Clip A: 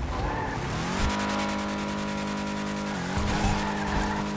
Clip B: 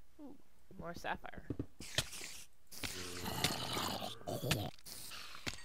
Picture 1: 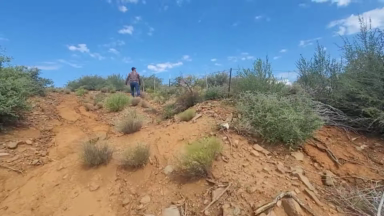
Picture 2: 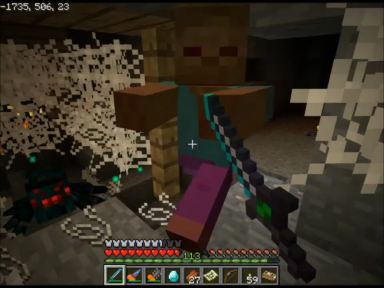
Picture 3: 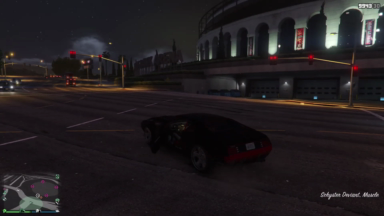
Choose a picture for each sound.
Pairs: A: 3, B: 2